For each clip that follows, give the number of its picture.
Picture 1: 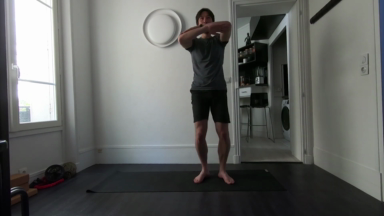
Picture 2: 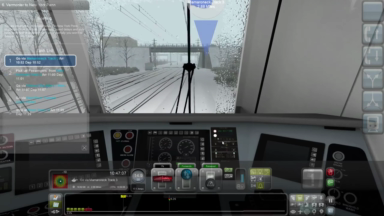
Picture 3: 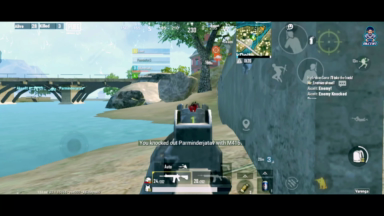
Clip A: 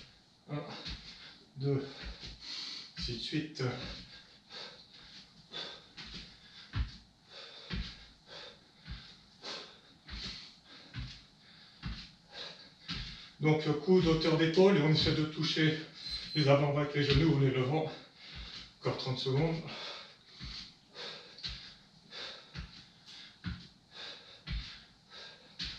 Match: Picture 1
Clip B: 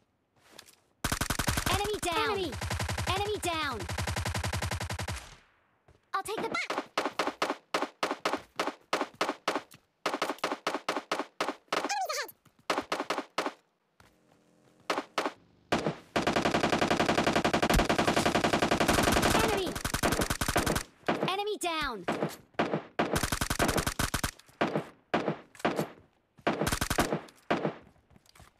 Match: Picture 3